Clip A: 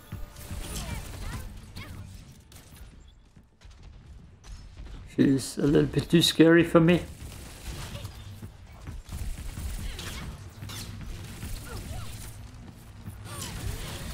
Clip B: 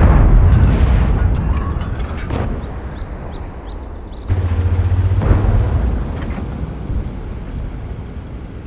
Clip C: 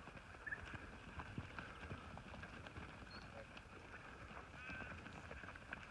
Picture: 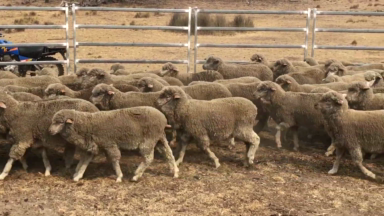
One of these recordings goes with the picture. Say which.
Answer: C